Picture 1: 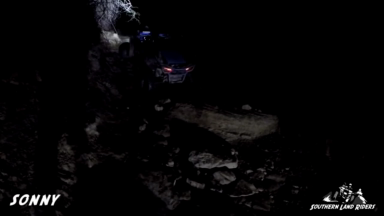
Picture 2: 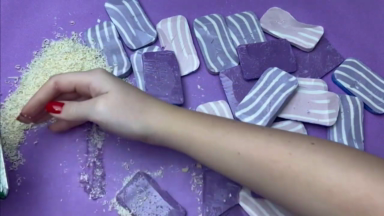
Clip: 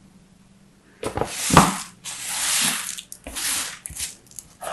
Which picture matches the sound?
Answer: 2